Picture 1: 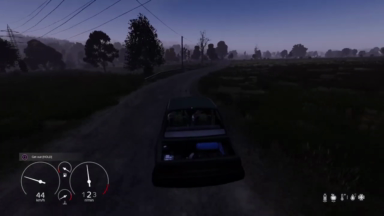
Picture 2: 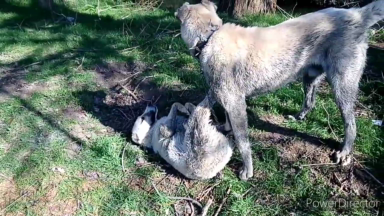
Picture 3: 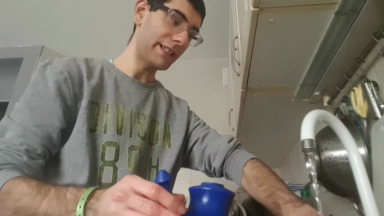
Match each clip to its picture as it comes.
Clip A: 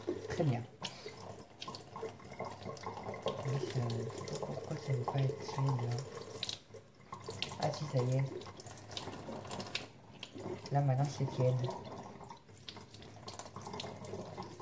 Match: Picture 3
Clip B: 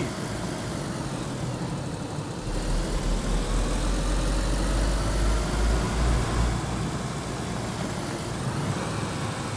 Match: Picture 1